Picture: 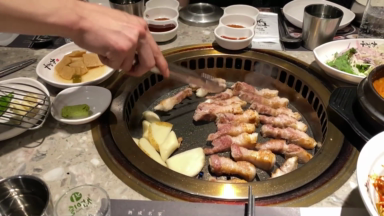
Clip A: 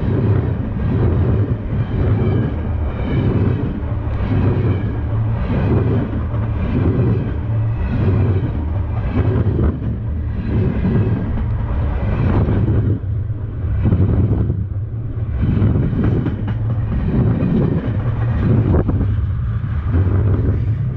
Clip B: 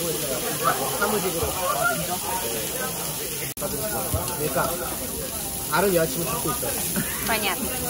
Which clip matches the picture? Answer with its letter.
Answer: B